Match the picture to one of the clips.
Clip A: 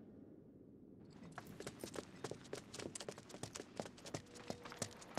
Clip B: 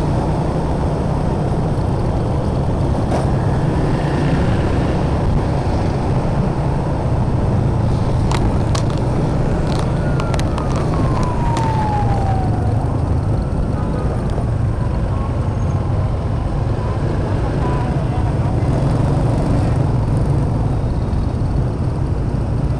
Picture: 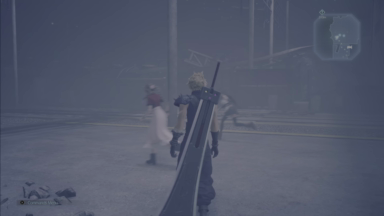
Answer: A